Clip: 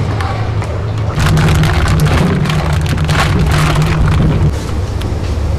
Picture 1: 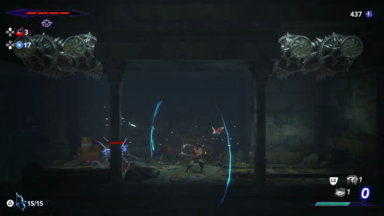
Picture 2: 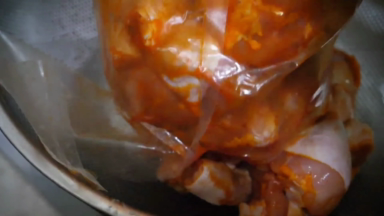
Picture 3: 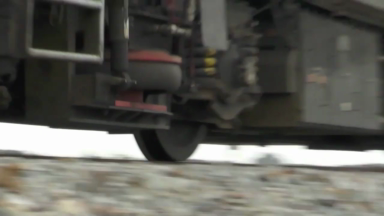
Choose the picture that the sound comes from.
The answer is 2